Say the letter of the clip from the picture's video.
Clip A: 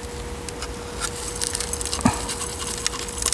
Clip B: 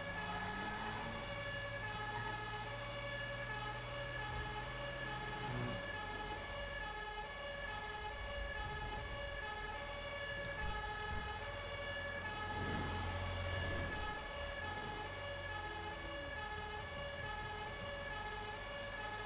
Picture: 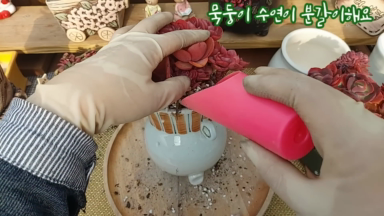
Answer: A